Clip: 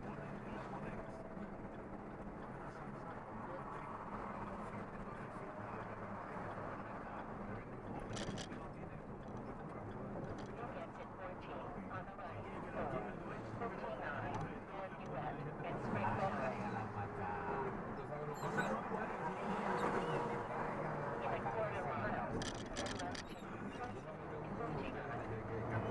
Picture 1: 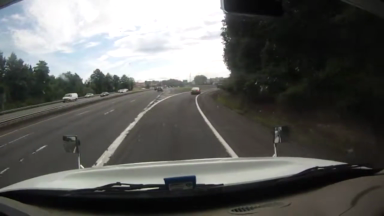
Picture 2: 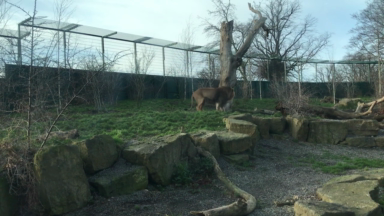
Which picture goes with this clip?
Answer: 1